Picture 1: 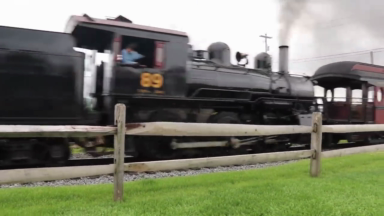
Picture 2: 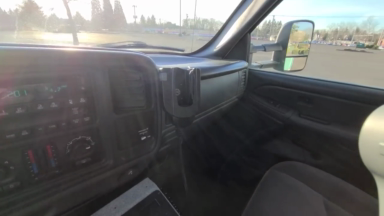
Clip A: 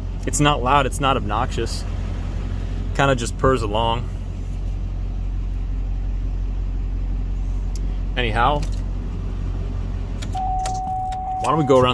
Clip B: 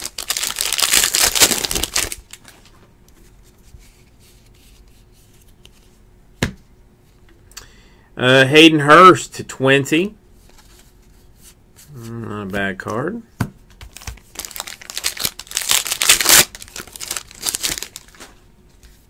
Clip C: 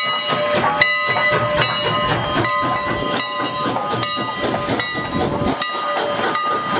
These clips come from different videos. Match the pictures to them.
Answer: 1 C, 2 A